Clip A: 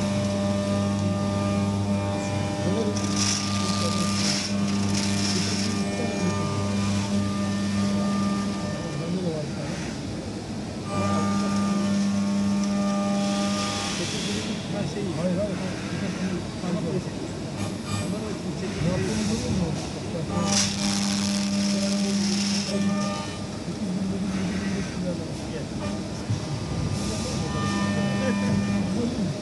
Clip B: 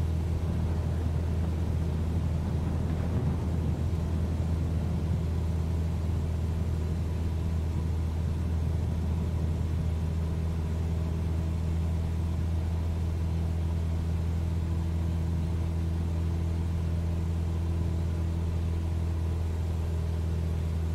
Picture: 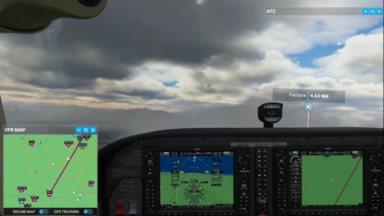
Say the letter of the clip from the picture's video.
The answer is B